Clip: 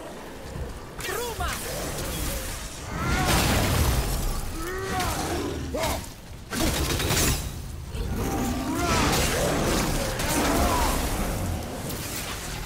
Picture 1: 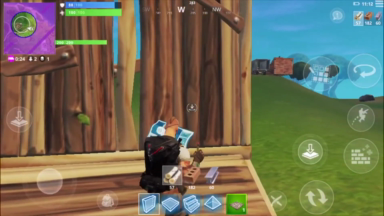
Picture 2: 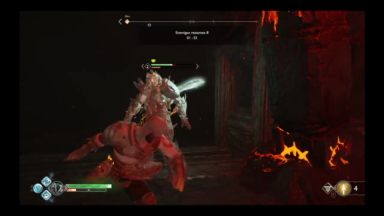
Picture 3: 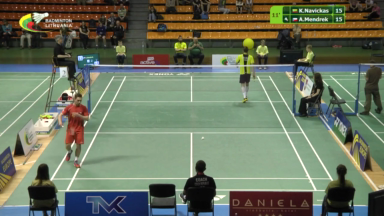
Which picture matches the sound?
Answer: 2